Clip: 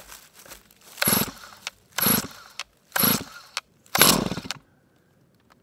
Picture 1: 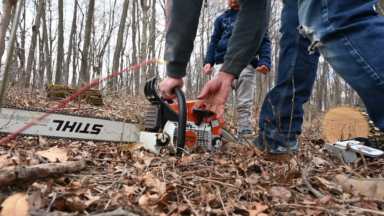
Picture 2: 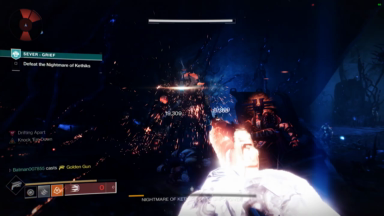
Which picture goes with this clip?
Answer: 1